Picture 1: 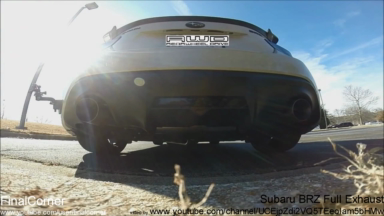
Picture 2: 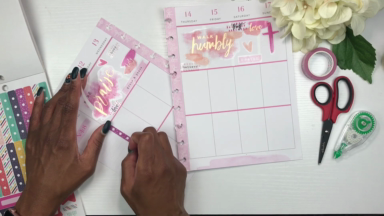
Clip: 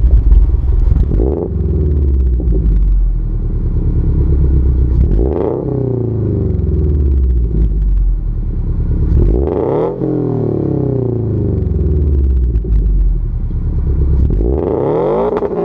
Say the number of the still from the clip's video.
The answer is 1